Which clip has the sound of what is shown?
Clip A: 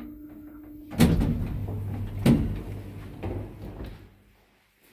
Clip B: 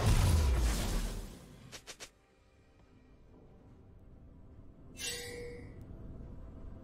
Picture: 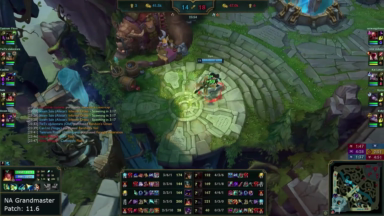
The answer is B